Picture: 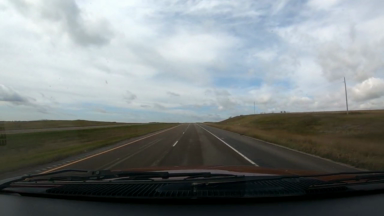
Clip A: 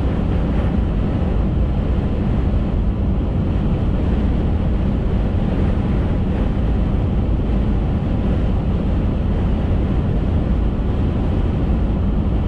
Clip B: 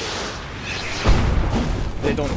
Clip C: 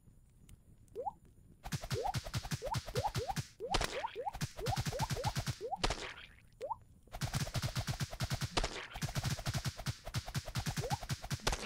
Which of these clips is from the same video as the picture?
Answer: A